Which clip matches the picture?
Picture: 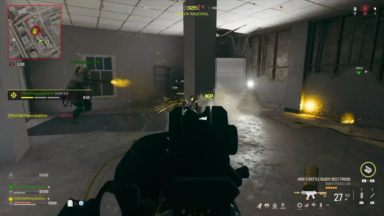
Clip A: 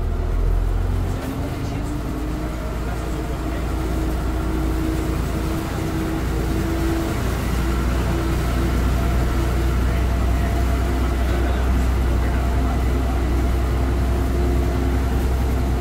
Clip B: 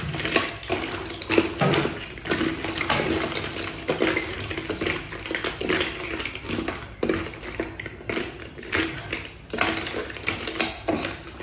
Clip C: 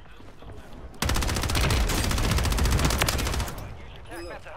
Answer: C